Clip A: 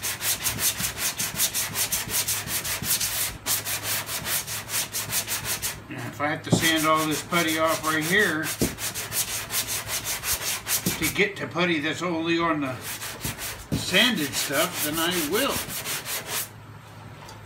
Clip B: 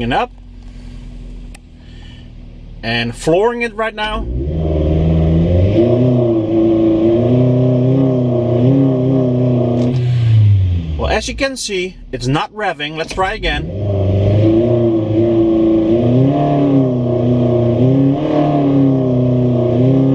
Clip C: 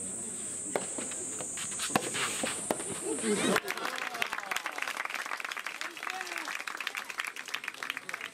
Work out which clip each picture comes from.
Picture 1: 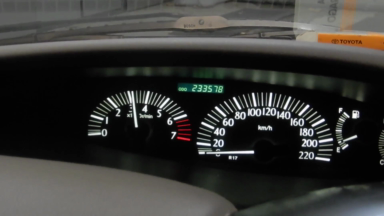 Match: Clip B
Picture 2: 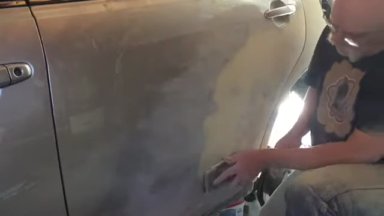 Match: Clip A